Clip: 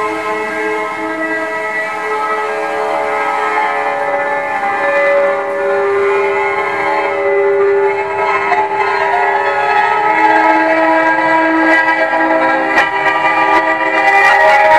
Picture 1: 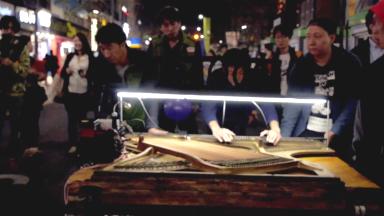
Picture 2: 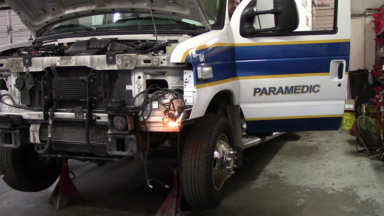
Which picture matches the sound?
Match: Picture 1